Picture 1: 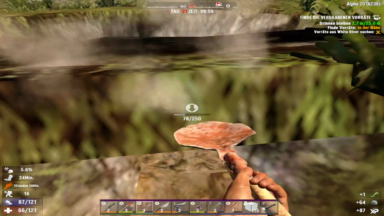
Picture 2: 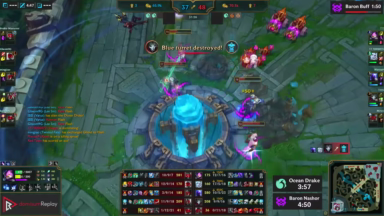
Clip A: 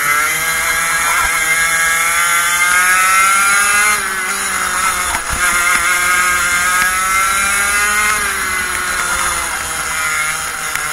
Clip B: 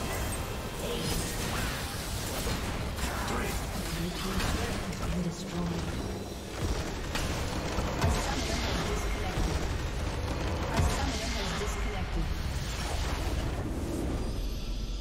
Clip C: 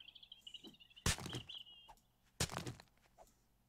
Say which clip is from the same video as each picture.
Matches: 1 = C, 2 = B